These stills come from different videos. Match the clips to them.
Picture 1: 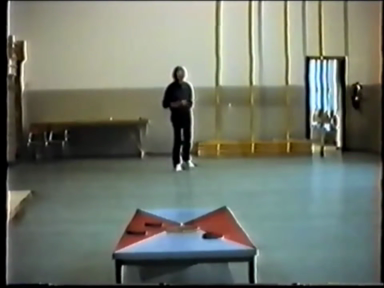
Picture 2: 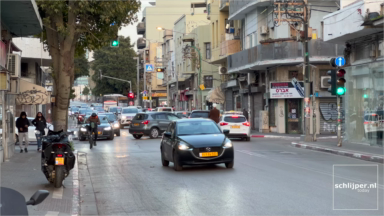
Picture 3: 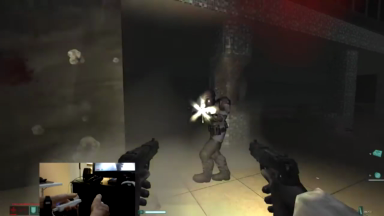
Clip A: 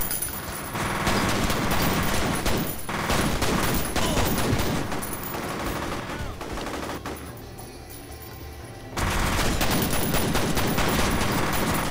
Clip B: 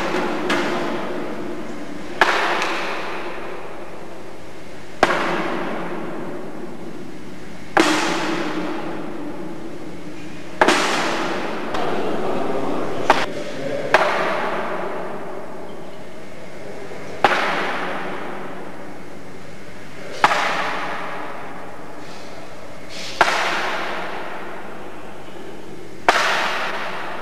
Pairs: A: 3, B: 1